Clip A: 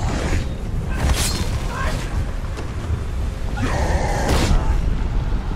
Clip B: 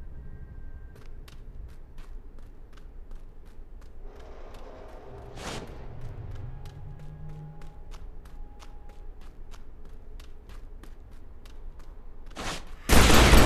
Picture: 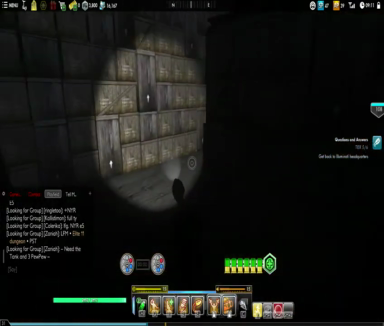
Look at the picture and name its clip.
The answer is B